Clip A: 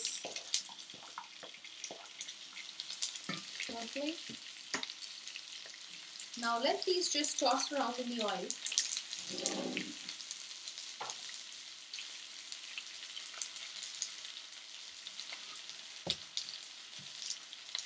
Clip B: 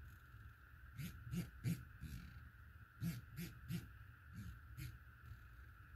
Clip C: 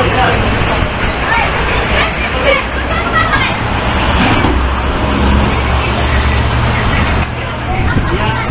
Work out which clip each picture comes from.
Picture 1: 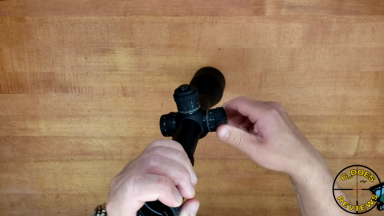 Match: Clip B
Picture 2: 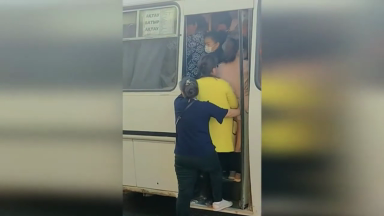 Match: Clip C